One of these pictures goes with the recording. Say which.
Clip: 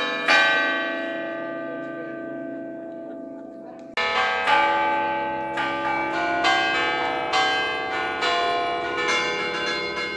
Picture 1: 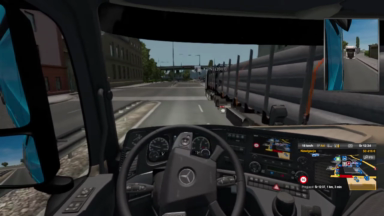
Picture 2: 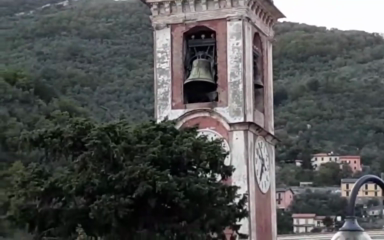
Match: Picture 2